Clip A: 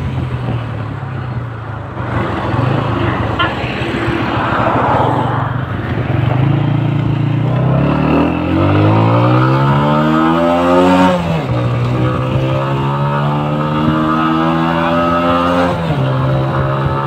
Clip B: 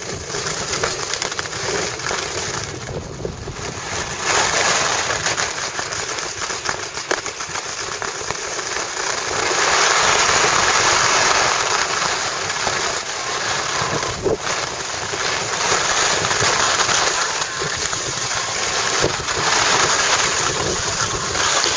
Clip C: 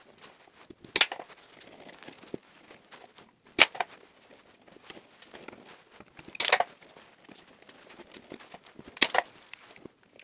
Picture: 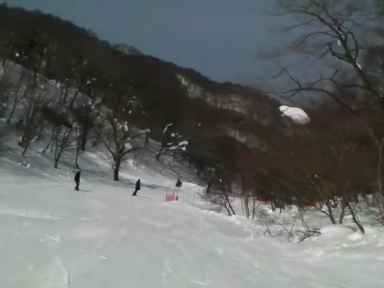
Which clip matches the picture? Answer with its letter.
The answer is B